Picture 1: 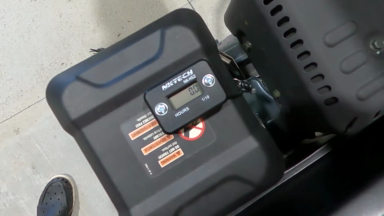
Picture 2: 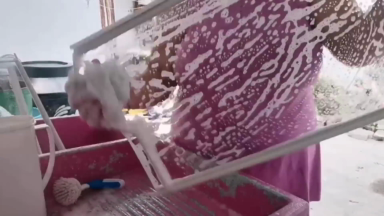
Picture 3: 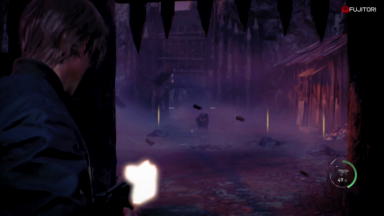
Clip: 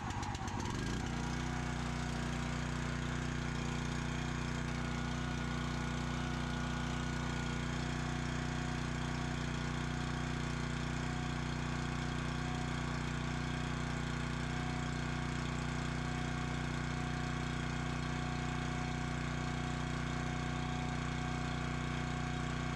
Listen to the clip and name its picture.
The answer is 1